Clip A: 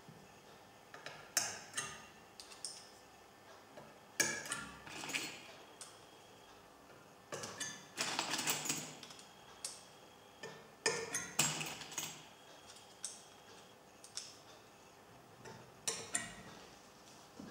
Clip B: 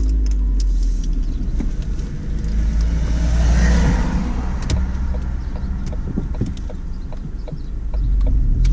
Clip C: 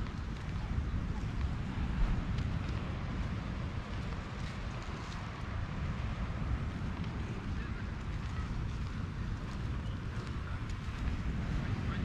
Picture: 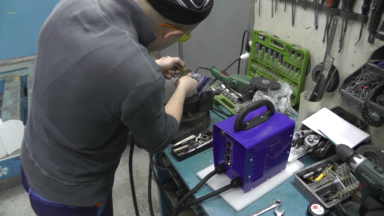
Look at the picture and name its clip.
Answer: A